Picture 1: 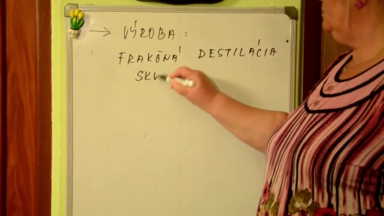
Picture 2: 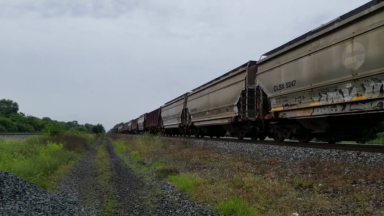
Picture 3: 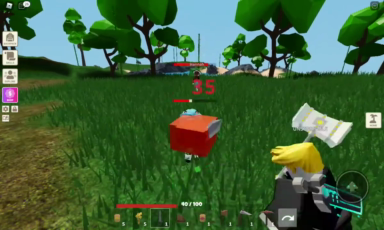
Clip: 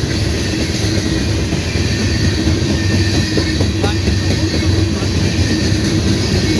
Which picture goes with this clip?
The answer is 2